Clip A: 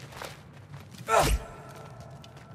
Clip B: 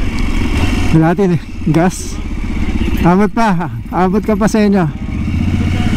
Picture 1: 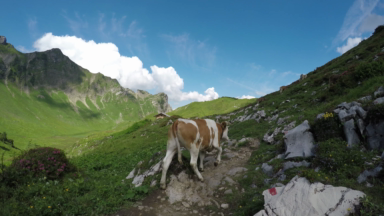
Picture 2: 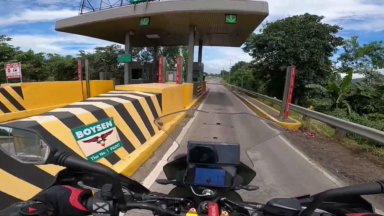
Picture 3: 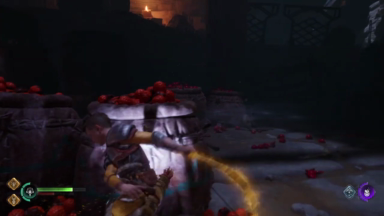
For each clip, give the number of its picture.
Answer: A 3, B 2